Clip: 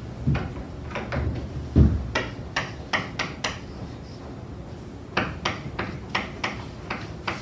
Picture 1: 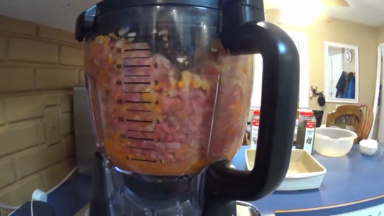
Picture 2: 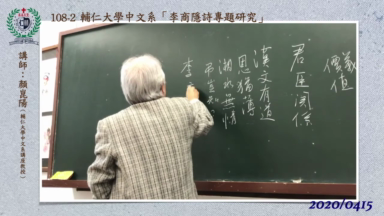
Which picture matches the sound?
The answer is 2